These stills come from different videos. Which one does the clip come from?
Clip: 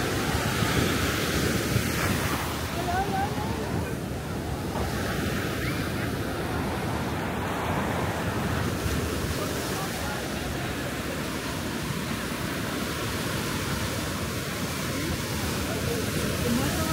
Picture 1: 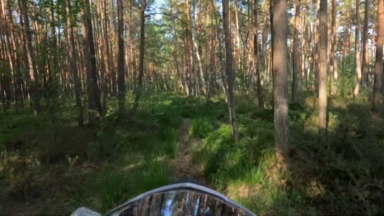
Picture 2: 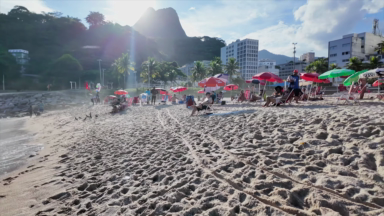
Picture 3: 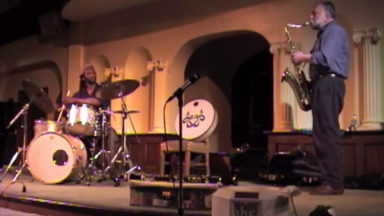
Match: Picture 2